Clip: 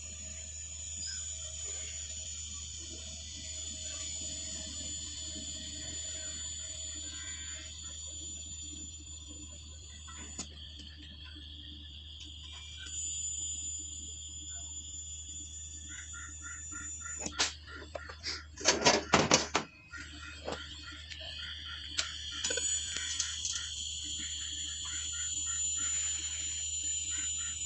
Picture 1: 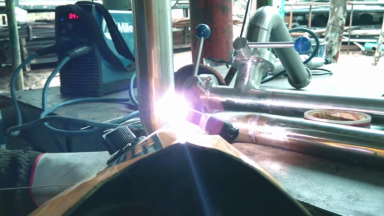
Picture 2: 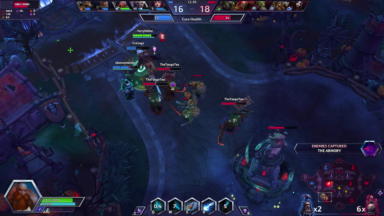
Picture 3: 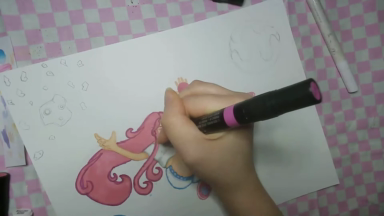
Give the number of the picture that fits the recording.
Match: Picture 1